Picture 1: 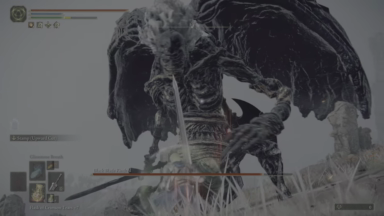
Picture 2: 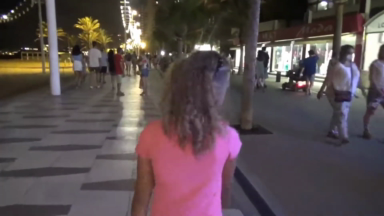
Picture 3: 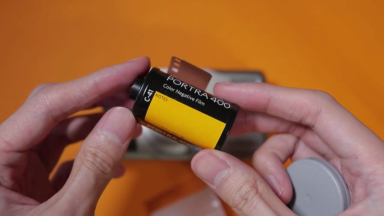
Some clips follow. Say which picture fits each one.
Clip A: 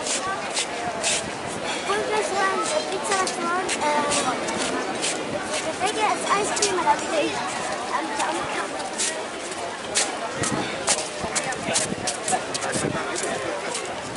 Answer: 2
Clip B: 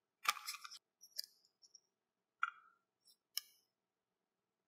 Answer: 3